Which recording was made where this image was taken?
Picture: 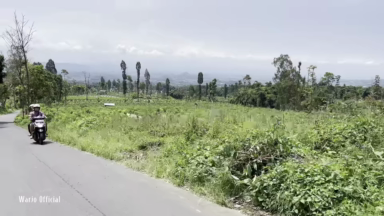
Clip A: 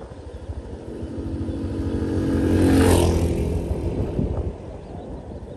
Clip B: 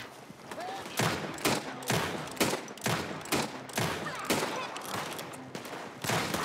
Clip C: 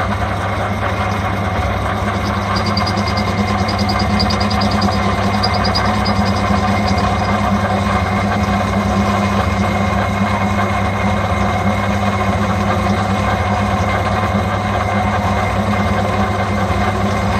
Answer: A